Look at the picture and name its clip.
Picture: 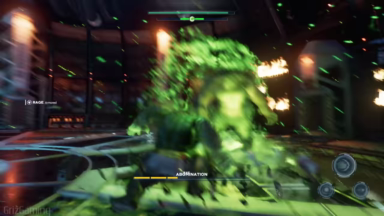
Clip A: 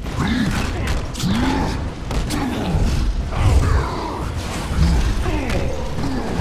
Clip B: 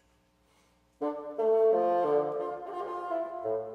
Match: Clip A